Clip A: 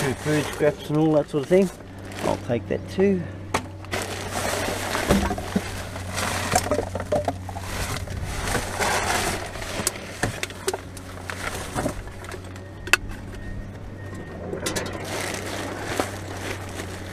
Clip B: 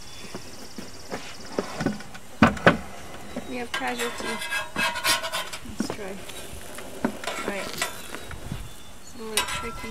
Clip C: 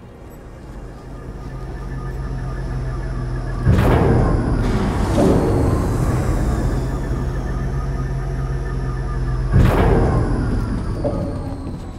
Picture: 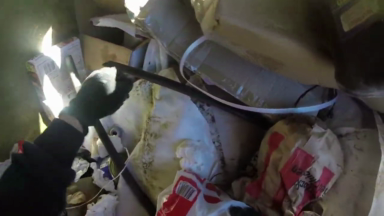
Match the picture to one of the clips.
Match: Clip A